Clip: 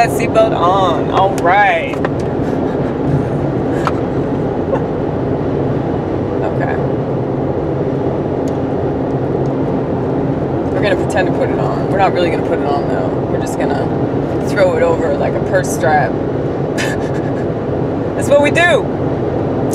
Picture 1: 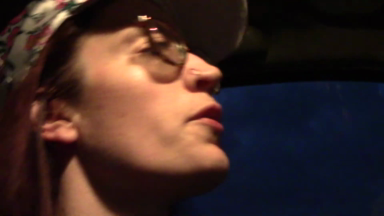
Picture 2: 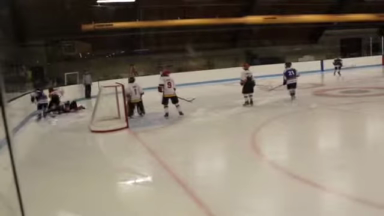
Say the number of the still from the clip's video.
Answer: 1